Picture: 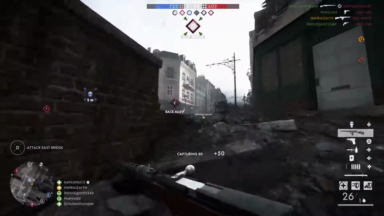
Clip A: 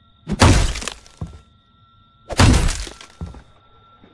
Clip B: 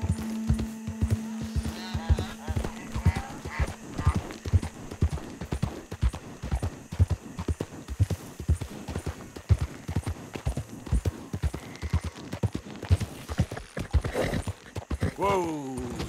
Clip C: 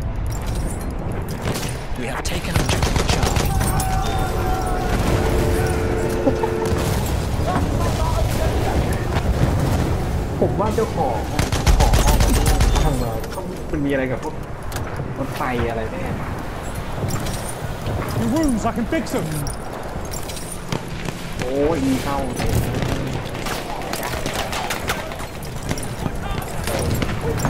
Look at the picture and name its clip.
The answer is C